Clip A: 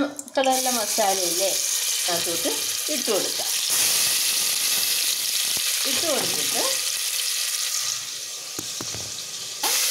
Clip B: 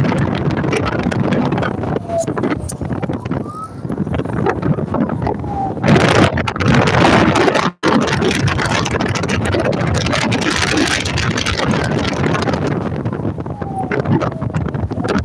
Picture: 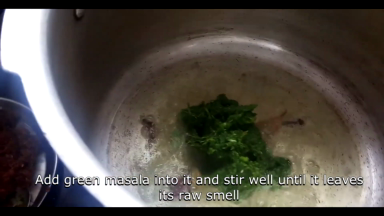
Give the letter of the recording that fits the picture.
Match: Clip A